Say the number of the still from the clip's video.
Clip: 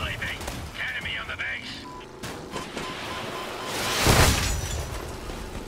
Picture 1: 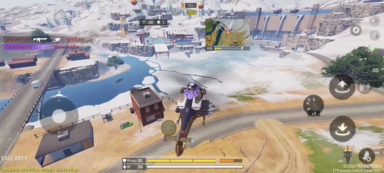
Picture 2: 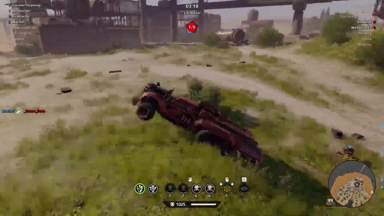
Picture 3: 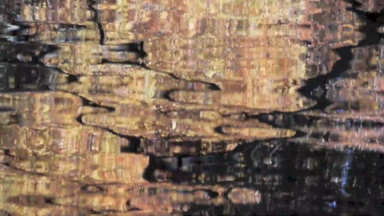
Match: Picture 2